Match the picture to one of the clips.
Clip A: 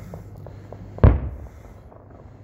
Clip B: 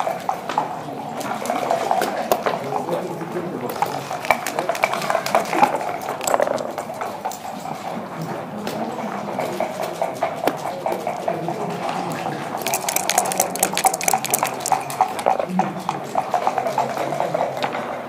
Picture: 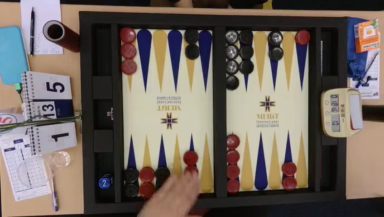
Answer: B